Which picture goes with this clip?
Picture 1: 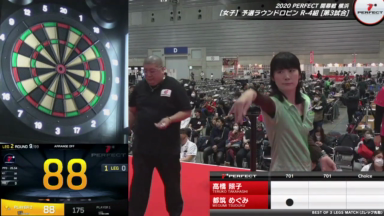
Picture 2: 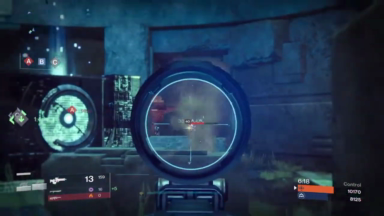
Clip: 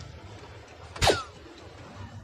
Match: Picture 1